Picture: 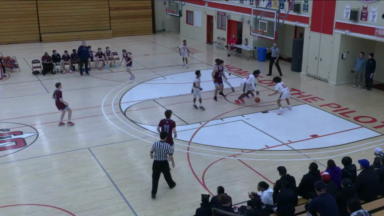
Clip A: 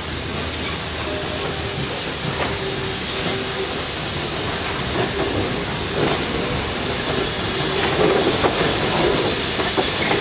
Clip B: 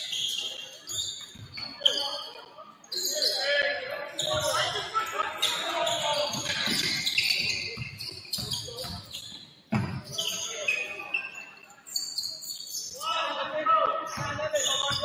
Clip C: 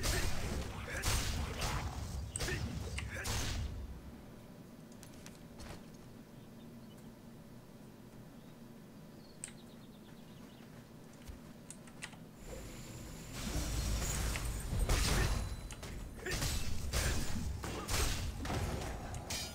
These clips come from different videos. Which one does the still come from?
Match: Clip B